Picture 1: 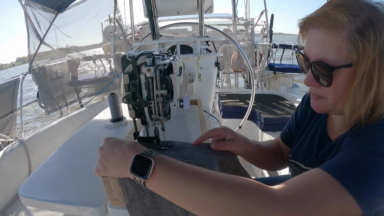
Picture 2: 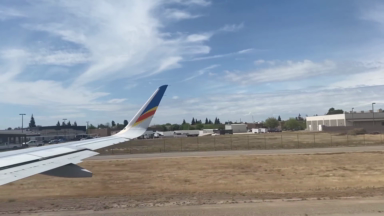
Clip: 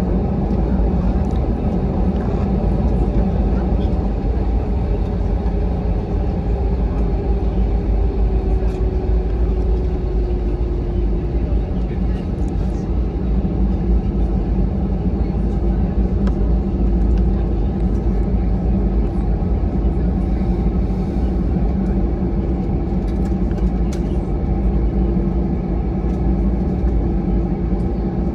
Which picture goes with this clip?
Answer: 2